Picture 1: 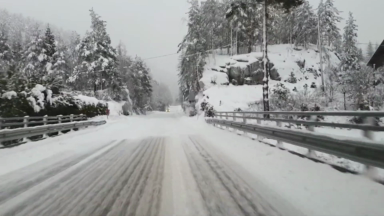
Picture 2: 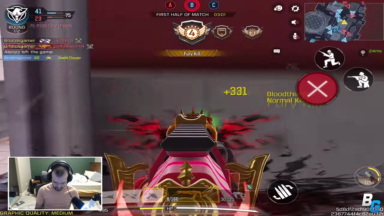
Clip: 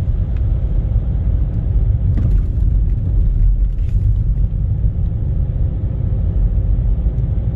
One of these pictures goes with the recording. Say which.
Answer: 1